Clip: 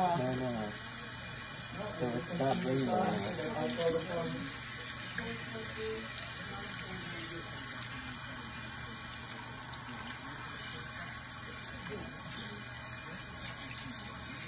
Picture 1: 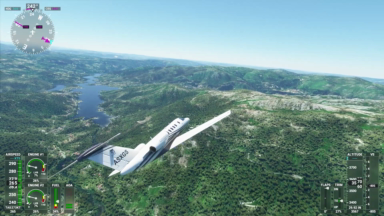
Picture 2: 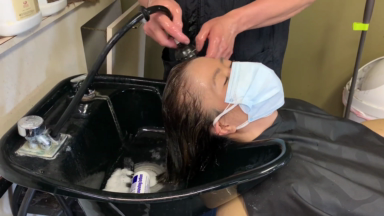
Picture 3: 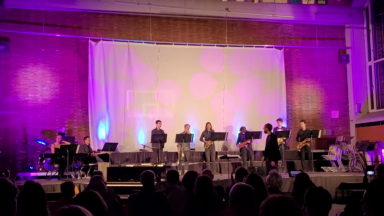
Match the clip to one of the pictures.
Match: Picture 2